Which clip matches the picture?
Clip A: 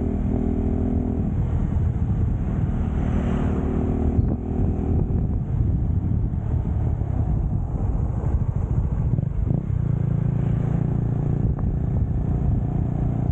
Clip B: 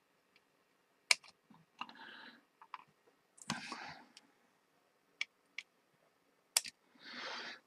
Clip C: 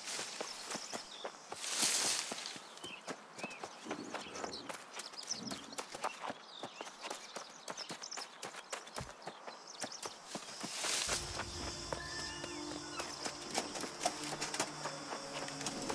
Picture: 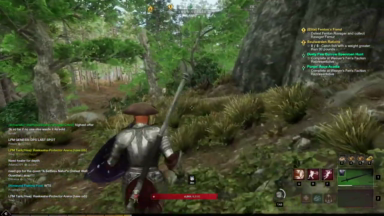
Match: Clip C